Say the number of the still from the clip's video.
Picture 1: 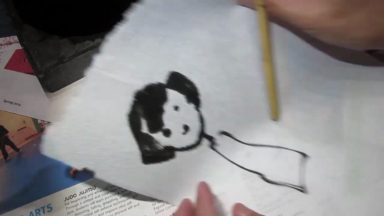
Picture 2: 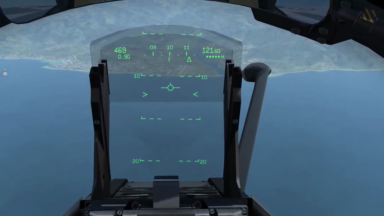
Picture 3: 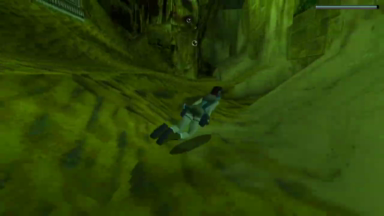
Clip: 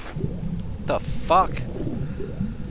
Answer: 3